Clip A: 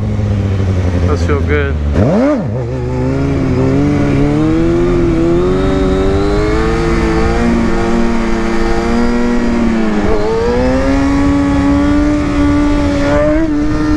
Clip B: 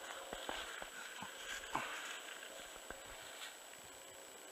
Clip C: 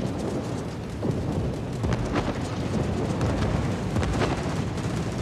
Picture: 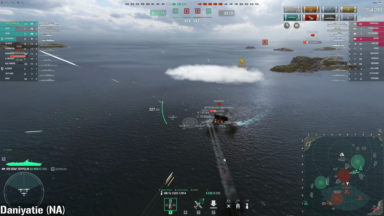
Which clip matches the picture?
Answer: C